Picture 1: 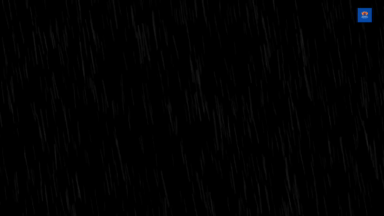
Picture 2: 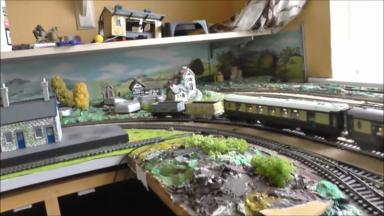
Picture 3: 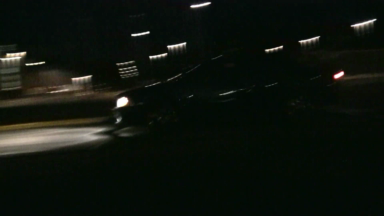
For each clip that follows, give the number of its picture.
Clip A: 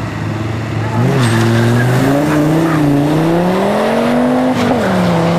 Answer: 3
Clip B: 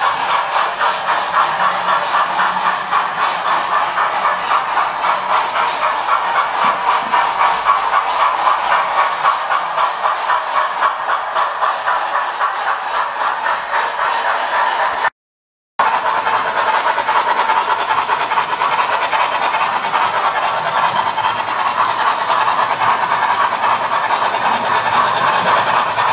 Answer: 2